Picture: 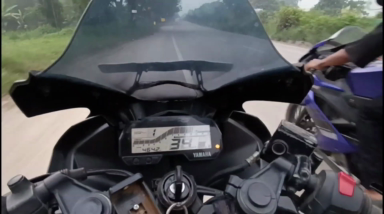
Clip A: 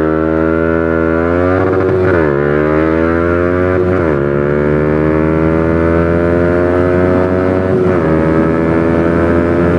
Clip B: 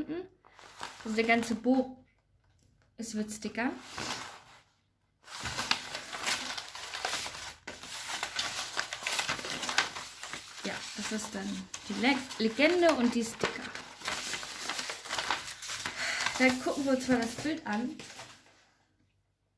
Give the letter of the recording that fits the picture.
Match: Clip A